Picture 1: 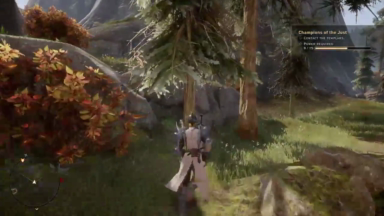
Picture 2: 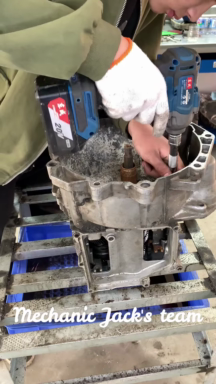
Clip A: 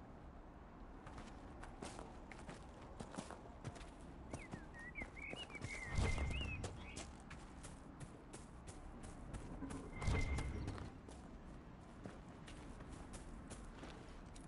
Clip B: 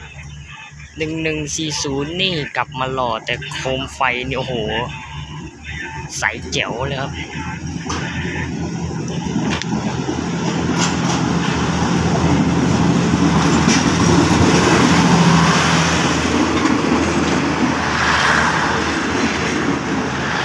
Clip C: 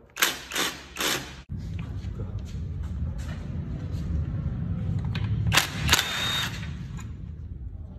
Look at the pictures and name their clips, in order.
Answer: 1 A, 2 C